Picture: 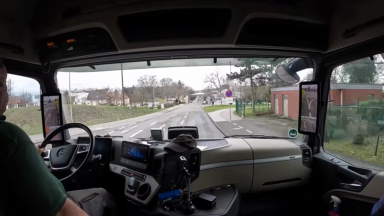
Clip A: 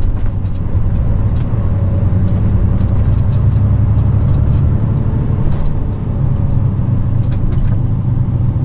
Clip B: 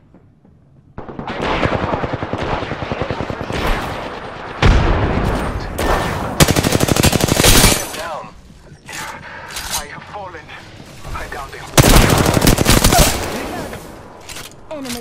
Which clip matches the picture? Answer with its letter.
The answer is A